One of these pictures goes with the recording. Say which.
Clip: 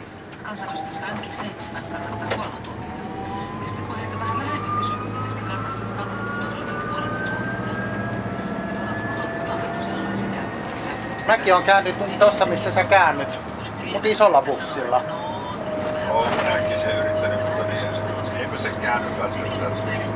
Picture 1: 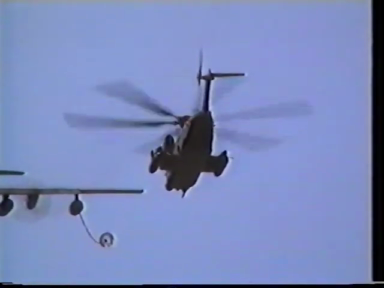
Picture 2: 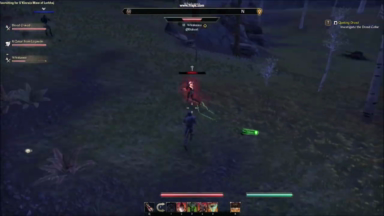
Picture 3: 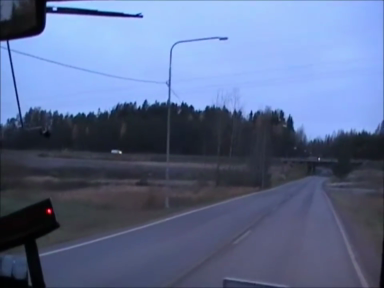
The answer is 3